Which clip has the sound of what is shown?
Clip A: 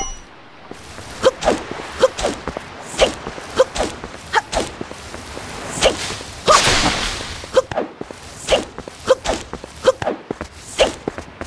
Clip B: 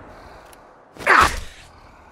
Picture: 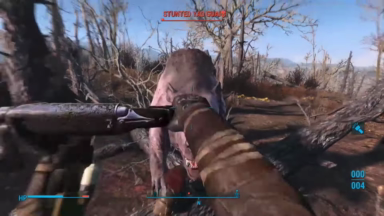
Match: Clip B